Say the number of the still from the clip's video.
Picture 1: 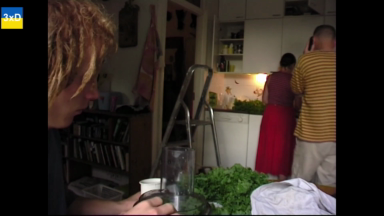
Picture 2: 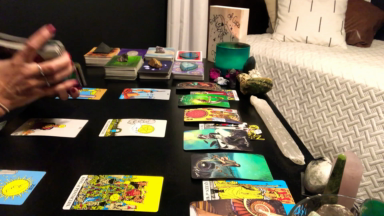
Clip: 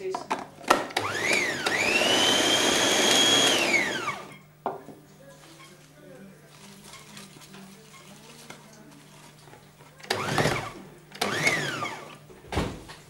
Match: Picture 1